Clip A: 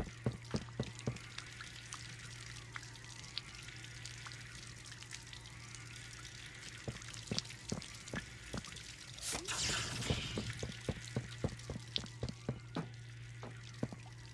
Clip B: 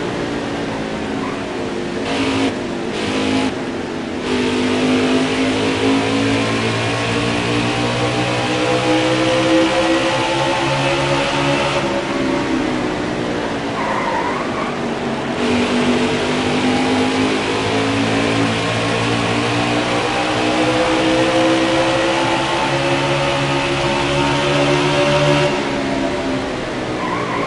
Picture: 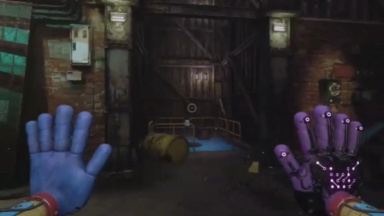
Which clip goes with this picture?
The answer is A